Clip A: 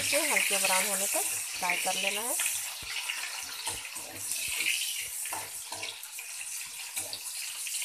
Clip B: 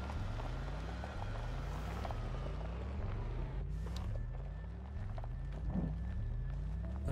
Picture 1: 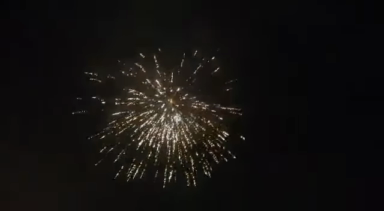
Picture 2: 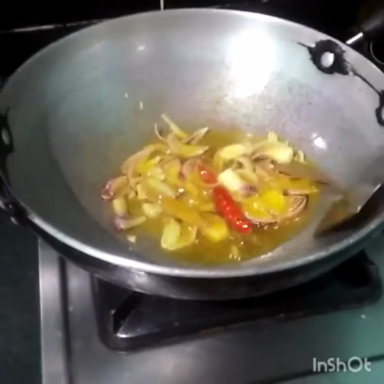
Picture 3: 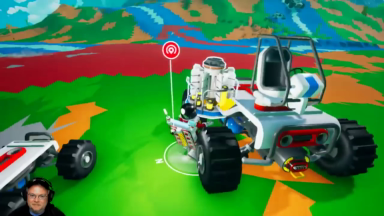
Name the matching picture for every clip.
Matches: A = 2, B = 3